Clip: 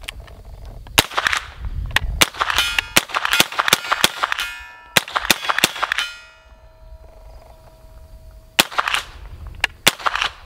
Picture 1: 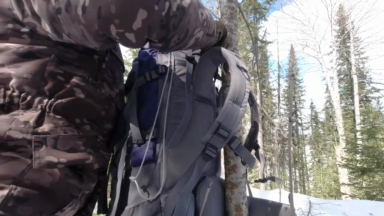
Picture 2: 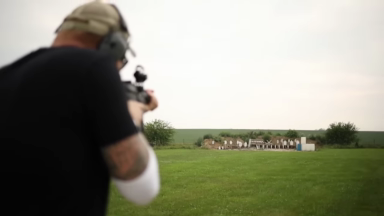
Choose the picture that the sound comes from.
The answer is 2